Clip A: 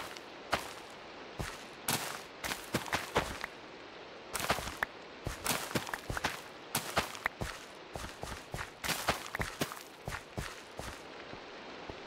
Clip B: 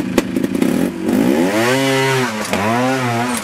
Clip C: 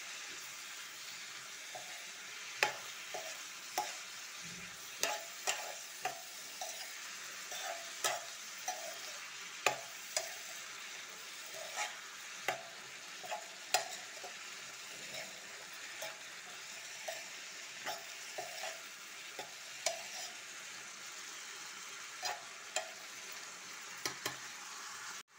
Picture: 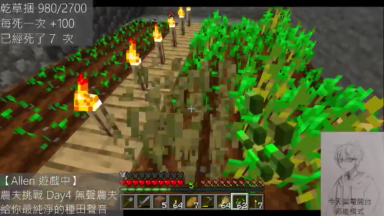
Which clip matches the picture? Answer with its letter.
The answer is A